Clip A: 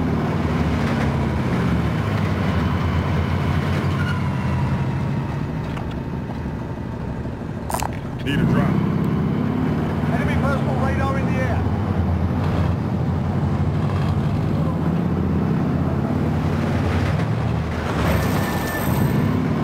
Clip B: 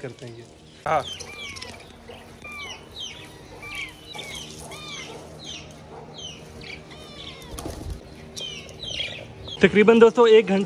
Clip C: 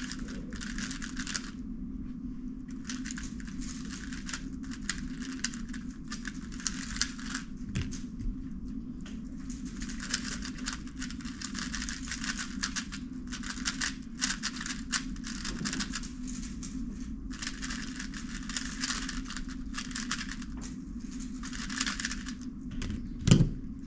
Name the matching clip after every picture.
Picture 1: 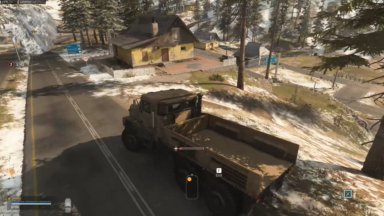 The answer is A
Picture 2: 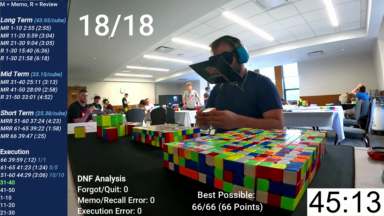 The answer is C